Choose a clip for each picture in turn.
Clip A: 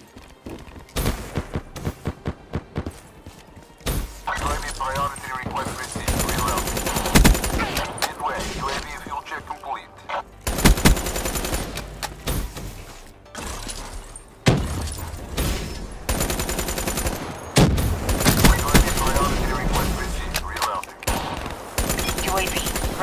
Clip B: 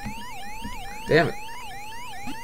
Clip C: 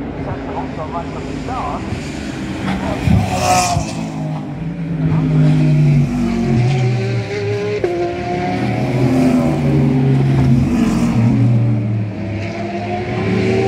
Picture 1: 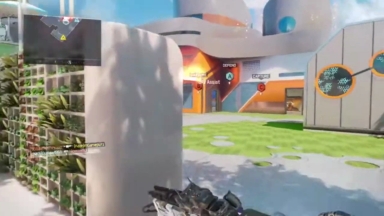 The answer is A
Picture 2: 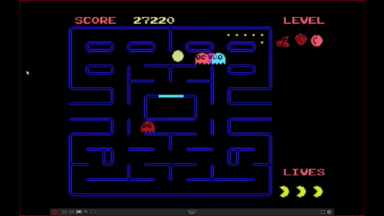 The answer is B